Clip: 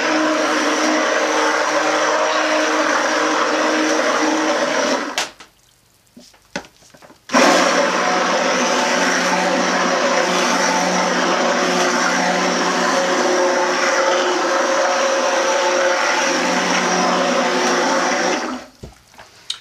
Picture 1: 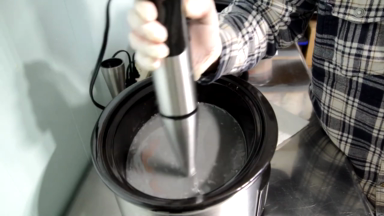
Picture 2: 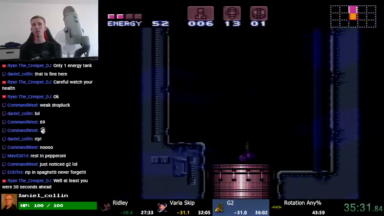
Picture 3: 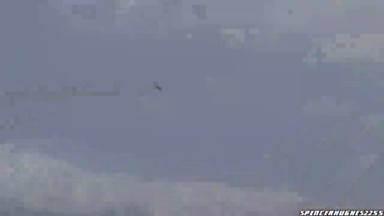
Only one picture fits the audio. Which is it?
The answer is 1